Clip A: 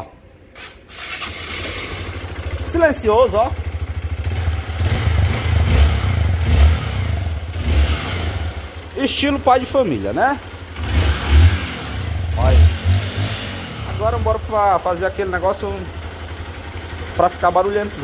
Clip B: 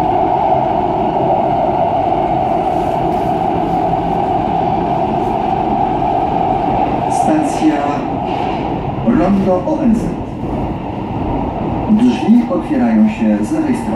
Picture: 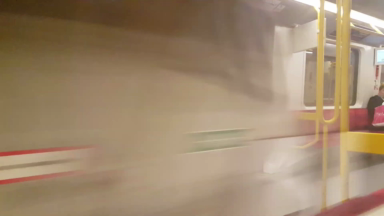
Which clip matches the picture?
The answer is B